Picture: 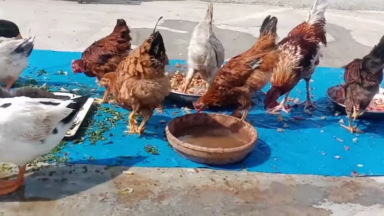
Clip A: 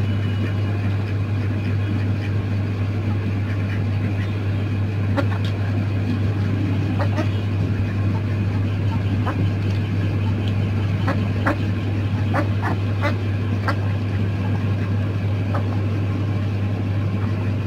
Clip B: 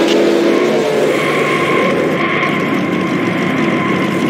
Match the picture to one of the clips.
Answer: A